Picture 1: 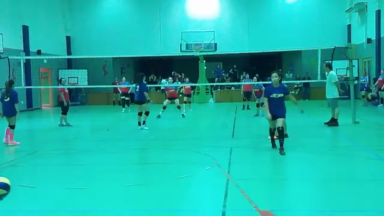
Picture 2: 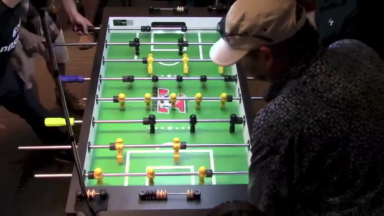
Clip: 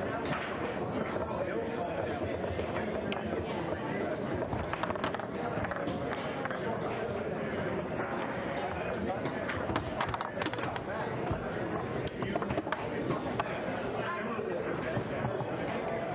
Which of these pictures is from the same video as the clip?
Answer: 2